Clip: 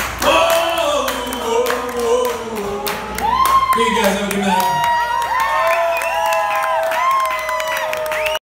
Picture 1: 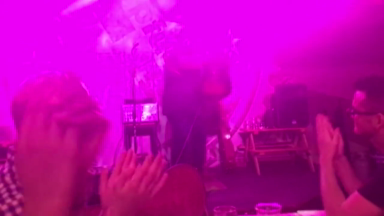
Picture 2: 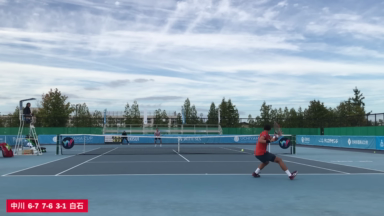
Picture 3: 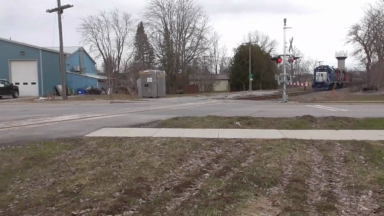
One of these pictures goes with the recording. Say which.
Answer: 1